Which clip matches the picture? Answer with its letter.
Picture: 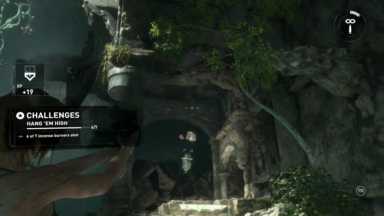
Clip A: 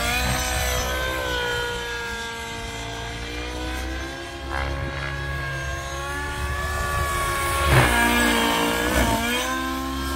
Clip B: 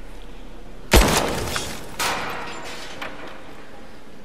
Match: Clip B